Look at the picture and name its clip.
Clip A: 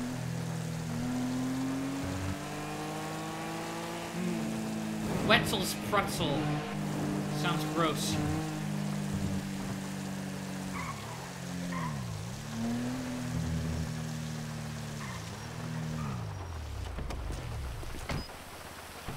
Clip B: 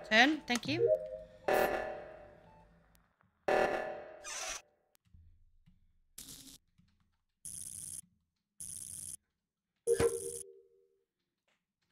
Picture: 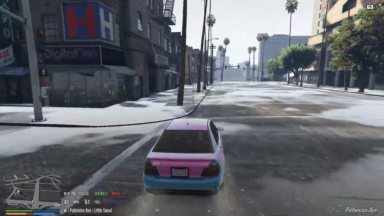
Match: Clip A